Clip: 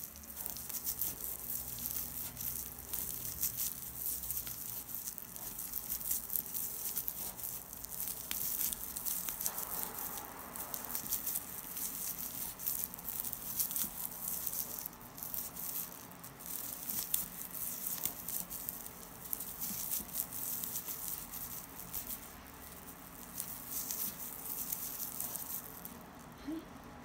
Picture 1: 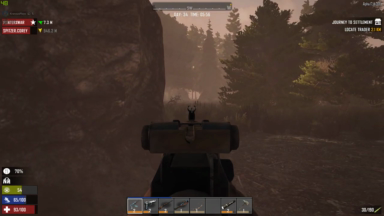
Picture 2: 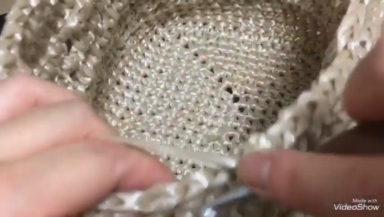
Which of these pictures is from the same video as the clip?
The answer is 2